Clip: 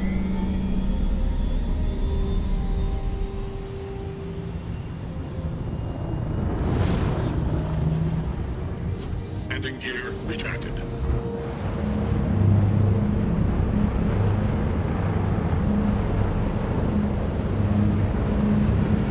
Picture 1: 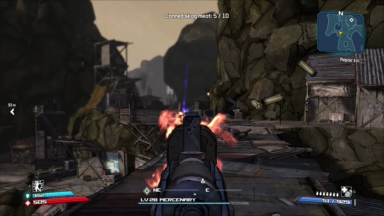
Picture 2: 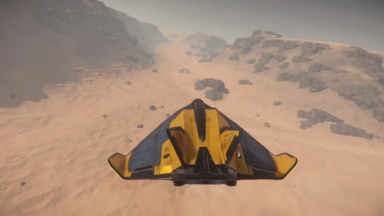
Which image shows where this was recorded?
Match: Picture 2